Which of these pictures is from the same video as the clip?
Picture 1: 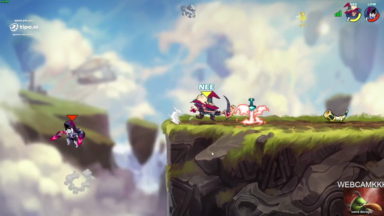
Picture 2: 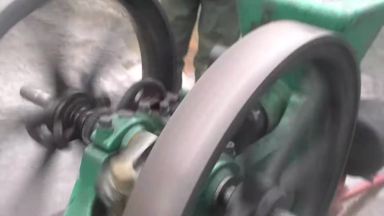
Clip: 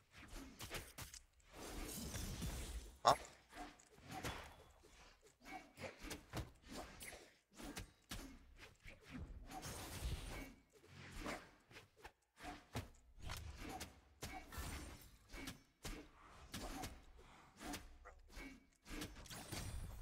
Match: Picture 1